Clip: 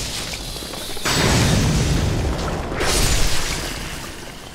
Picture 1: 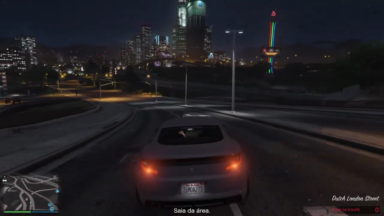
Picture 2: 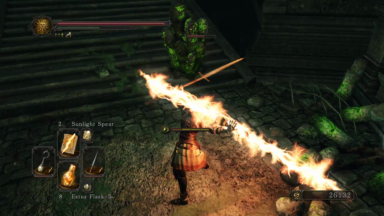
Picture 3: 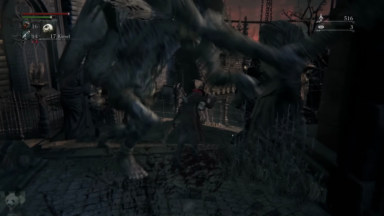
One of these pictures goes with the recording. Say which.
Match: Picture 2